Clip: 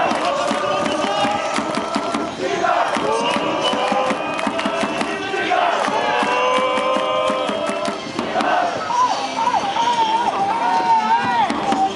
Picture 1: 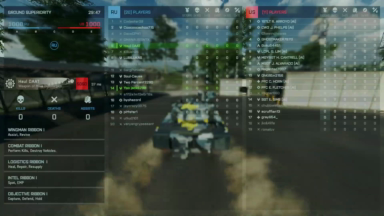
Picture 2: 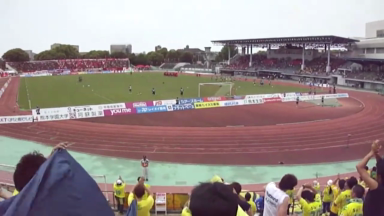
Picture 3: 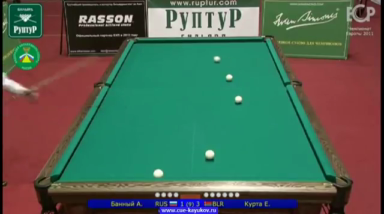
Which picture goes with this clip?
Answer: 2